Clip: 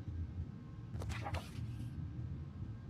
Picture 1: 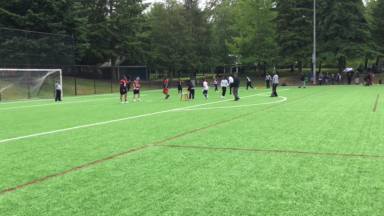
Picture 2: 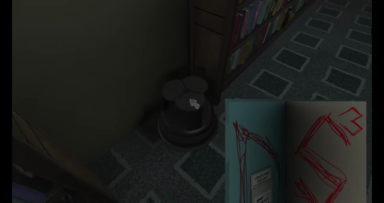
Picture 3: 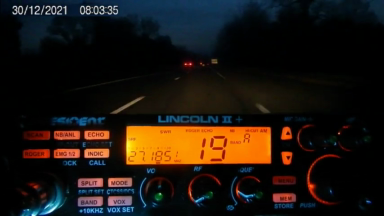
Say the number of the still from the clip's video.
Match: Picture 2